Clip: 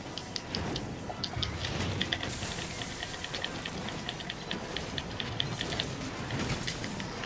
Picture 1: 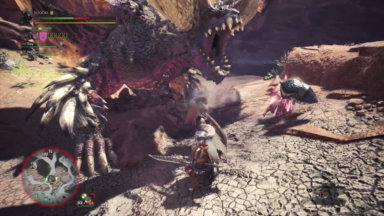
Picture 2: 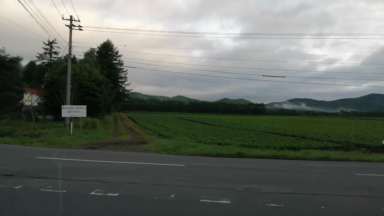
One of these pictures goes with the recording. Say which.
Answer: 1